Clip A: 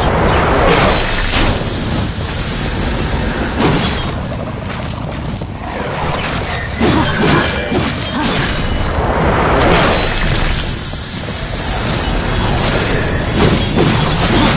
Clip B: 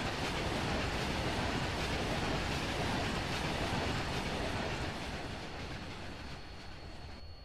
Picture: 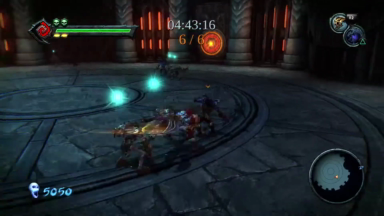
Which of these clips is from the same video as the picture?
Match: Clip A